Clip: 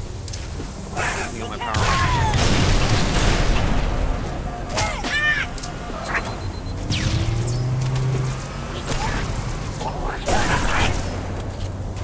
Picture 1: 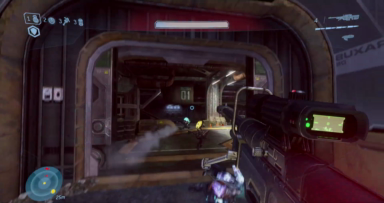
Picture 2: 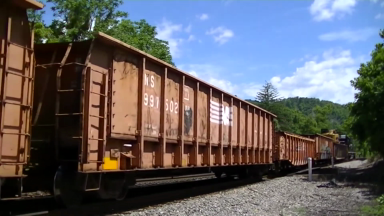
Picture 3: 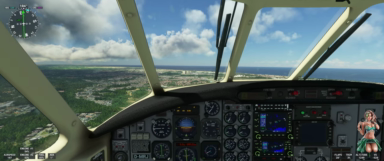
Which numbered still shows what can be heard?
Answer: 1